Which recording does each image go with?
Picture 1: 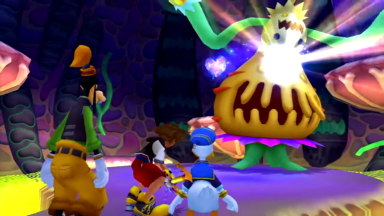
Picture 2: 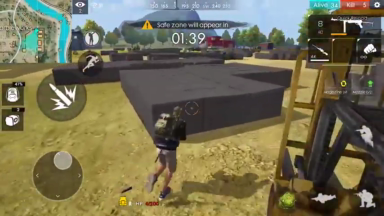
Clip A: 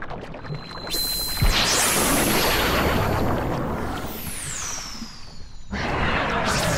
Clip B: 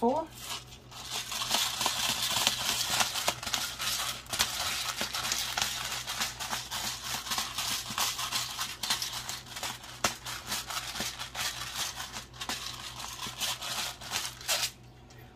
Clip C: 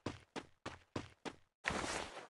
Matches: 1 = A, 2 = C